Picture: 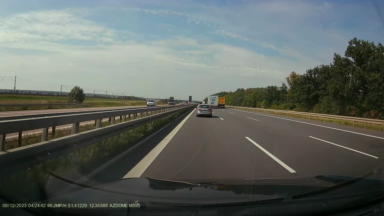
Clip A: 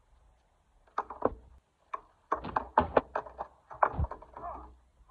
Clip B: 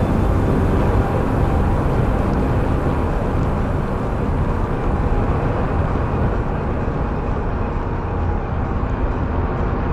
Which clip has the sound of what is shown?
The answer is B